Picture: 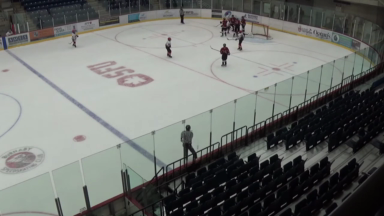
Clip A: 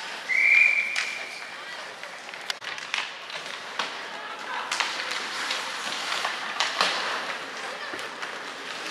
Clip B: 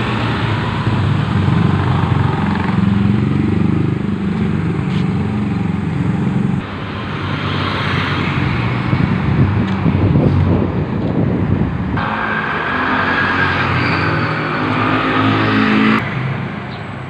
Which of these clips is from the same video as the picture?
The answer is A